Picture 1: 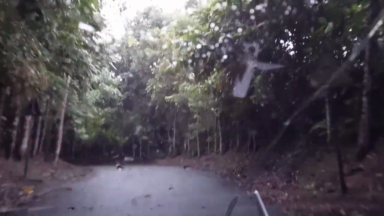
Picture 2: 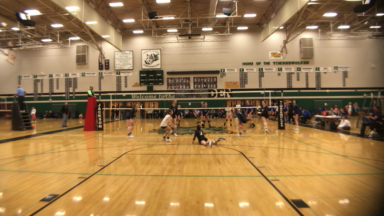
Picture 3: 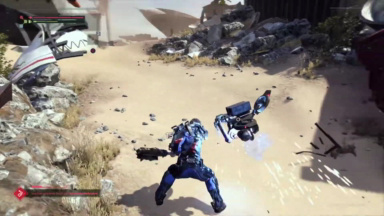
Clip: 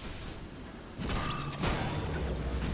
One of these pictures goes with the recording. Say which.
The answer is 3